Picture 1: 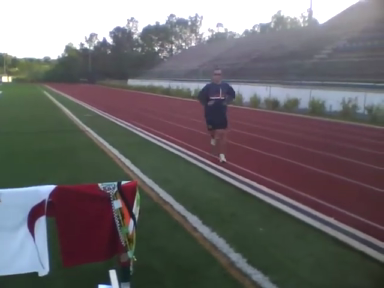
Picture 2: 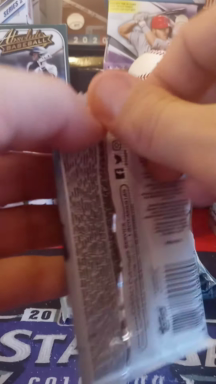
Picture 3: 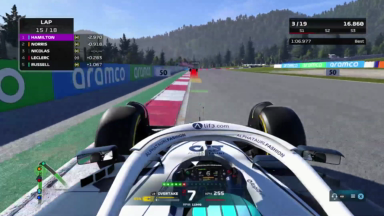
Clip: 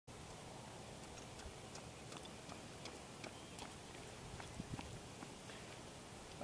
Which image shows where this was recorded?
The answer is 1